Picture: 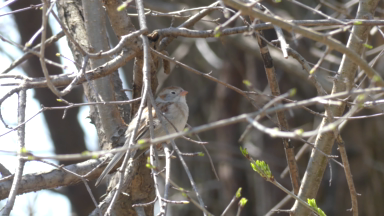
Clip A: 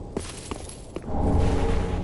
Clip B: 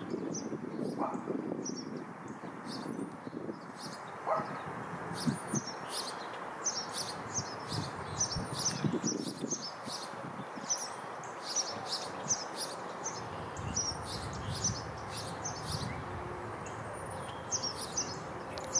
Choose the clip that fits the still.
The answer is B